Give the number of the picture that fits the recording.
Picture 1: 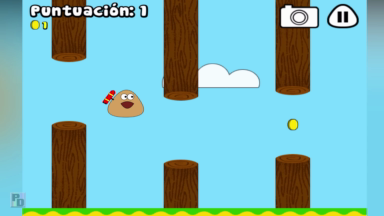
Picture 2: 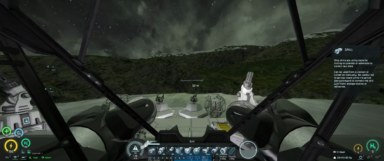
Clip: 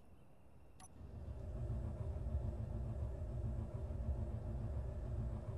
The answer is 2